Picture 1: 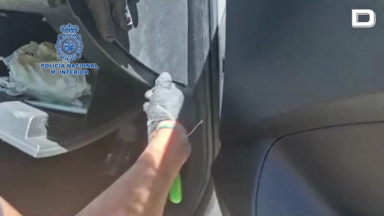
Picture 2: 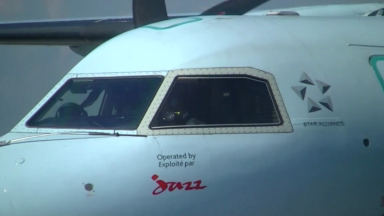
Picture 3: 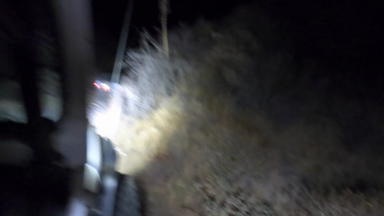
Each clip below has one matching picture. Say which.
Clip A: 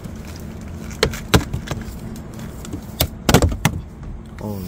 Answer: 1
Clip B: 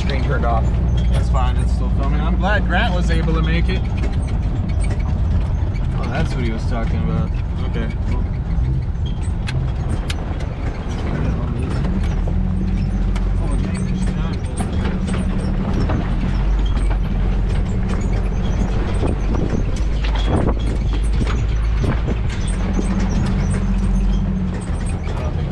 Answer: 3